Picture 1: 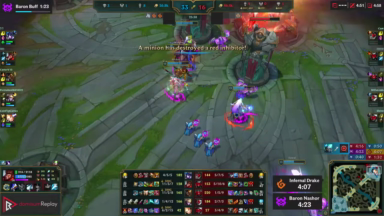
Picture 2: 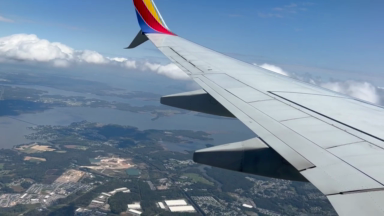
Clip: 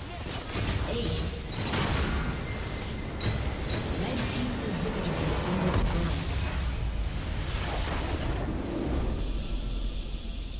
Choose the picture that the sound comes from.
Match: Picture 1